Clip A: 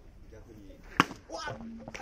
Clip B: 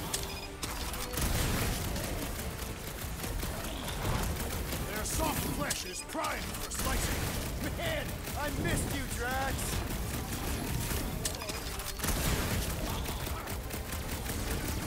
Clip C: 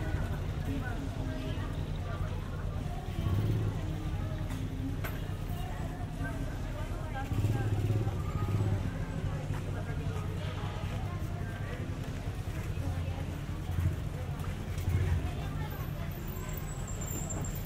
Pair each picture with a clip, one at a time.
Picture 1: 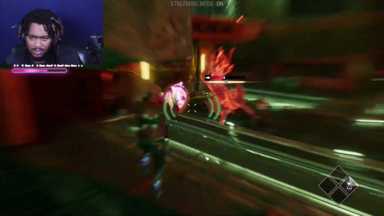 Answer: B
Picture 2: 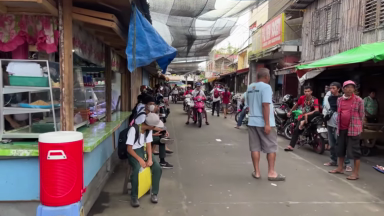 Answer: C